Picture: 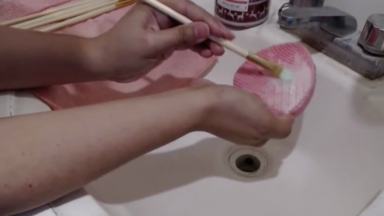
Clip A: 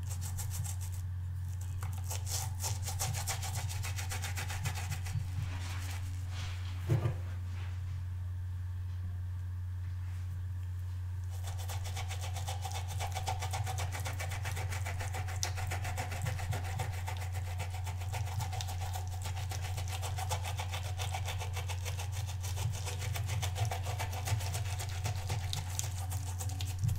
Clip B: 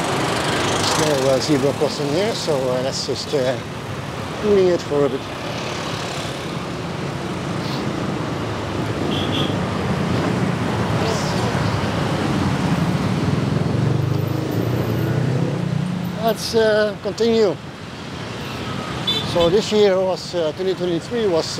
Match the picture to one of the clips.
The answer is A